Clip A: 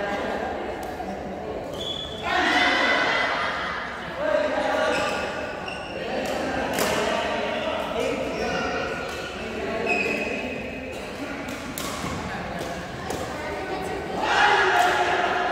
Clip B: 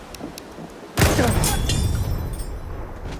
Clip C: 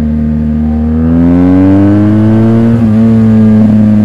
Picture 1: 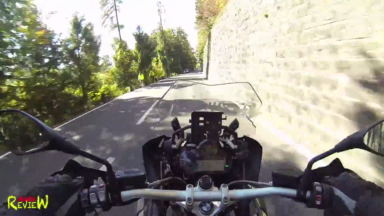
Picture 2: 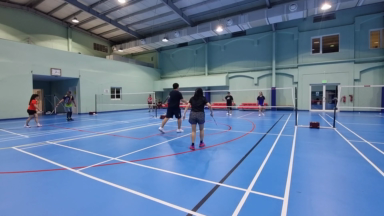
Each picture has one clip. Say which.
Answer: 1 C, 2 A